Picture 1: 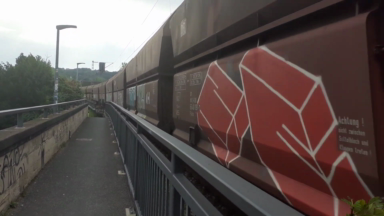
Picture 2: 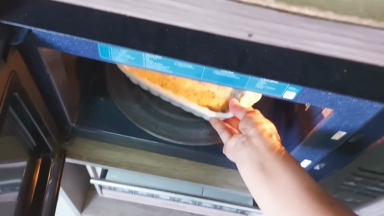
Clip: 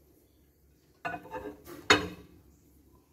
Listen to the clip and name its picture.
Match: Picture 2